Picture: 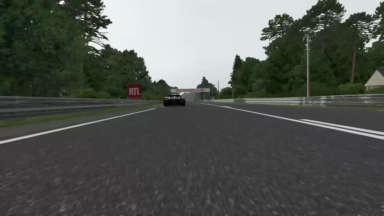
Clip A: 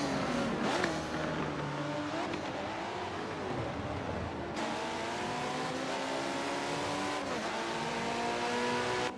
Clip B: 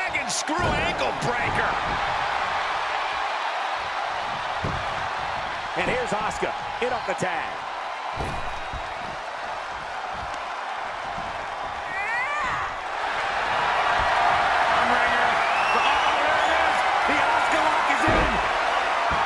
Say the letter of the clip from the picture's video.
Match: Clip A